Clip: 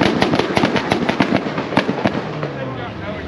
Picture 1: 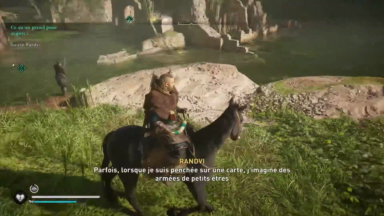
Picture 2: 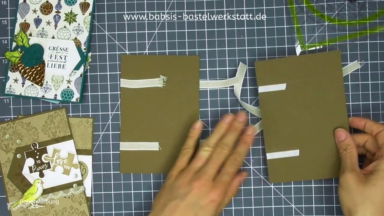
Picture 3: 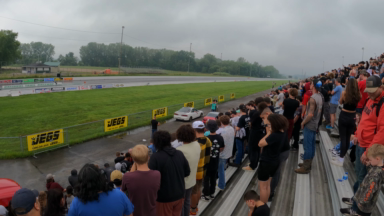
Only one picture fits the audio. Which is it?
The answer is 3